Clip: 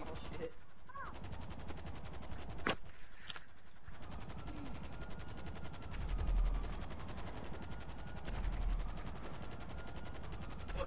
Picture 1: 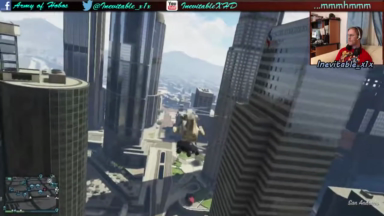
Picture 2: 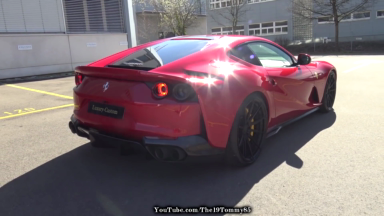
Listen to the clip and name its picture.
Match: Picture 1